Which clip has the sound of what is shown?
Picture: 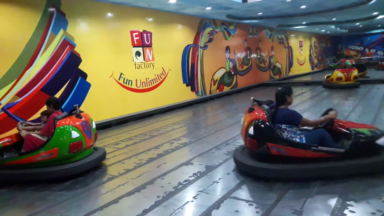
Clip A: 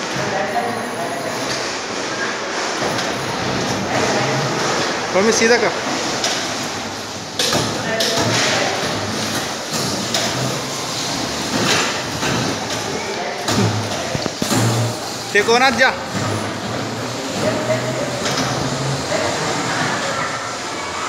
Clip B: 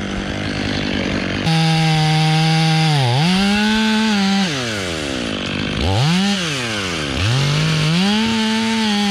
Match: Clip A